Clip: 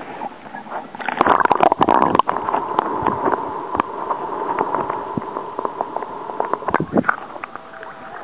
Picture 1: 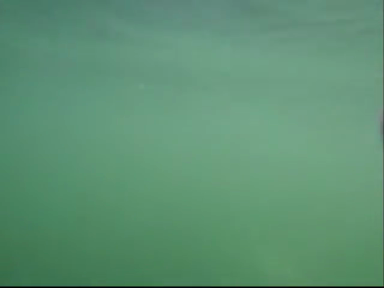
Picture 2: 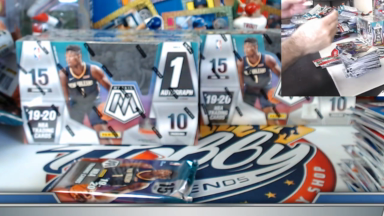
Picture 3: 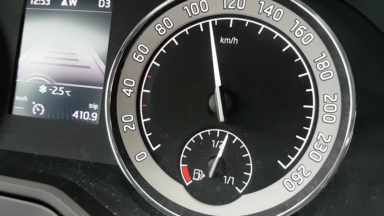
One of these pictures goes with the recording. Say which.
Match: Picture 1